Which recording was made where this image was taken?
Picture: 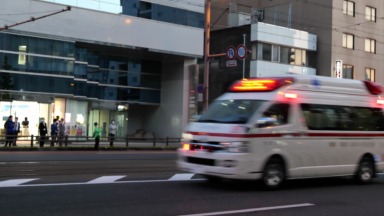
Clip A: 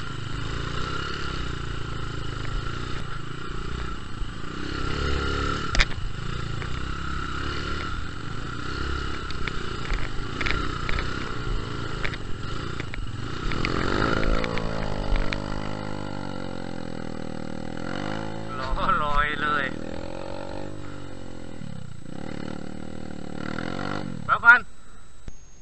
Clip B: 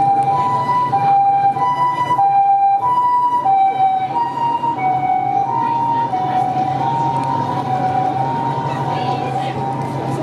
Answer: B